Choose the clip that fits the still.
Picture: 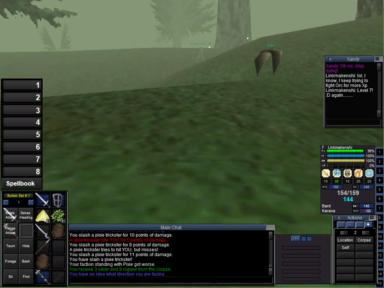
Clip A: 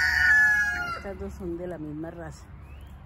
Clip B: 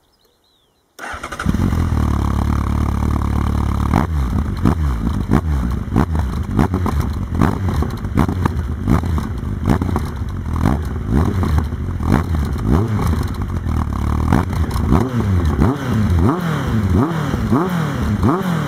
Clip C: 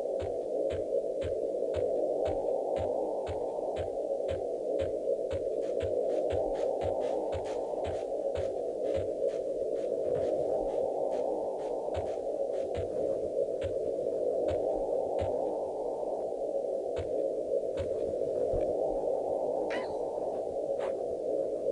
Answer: C